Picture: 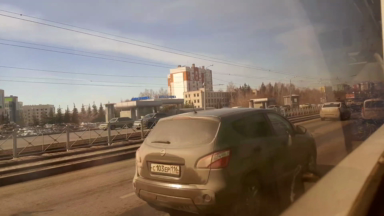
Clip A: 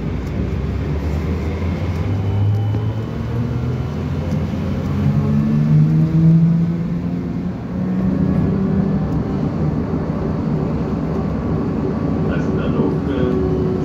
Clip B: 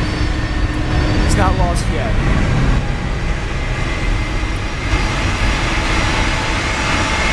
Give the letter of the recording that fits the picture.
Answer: A